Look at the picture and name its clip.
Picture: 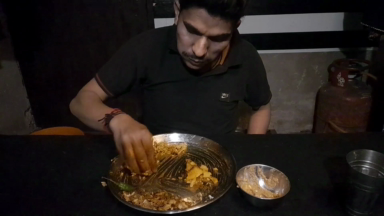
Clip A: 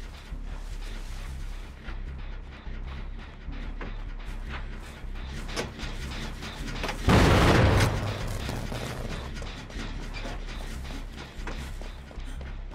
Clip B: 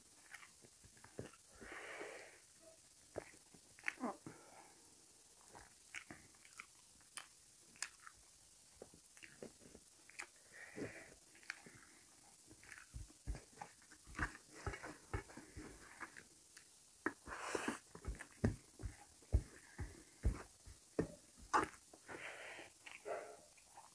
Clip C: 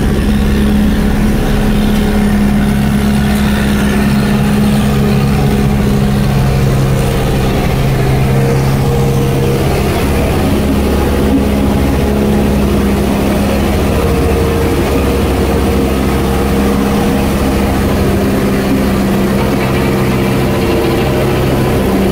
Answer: B